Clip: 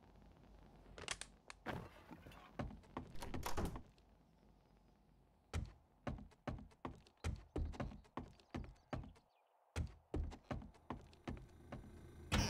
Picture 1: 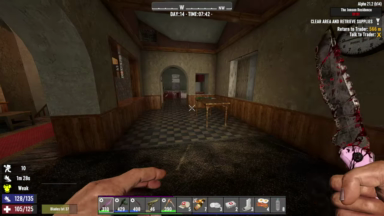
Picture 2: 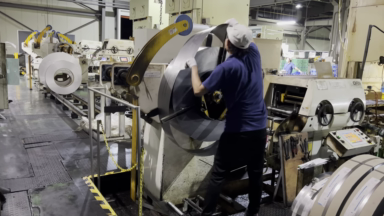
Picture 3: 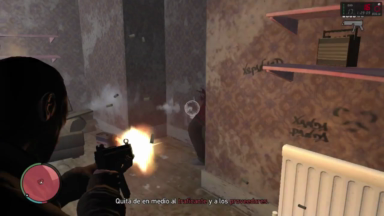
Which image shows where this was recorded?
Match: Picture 1